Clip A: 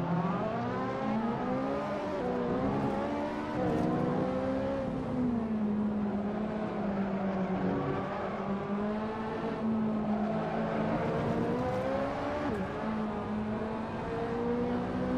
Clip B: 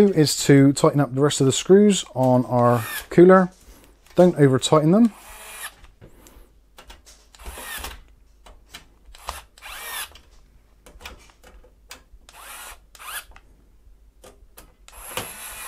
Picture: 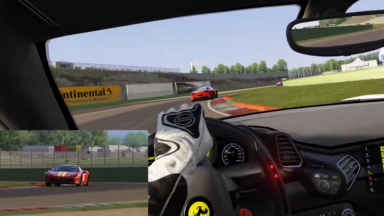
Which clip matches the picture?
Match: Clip A